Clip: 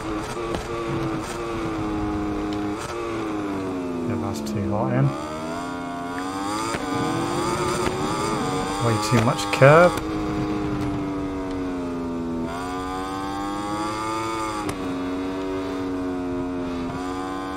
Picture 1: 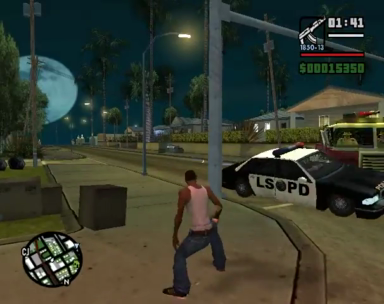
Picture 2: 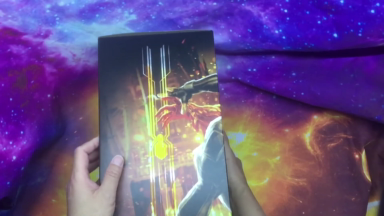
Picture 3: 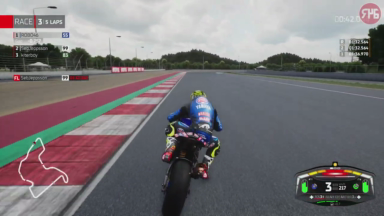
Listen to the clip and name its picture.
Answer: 3